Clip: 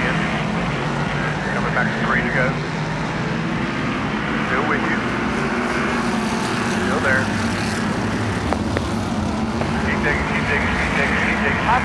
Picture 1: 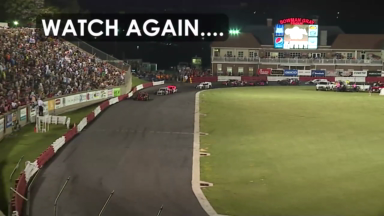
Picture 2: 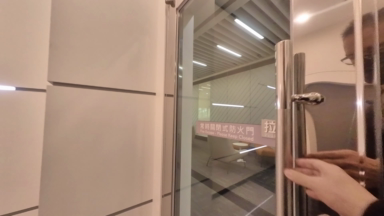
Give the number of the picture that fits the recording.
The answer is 1